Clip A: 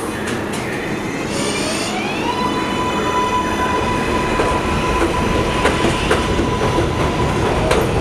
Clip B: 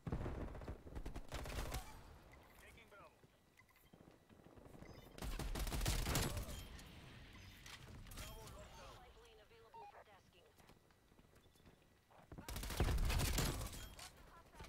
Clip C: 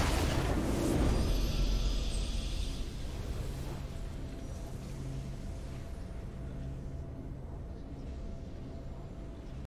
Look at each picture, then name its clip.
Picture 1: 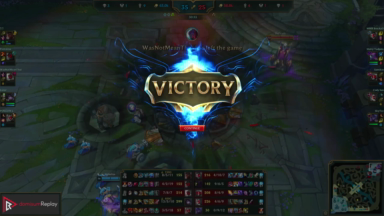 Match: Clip C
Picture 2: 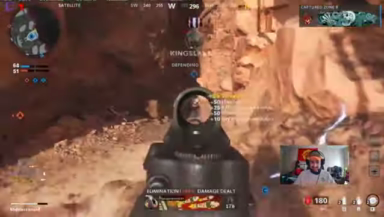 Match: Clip B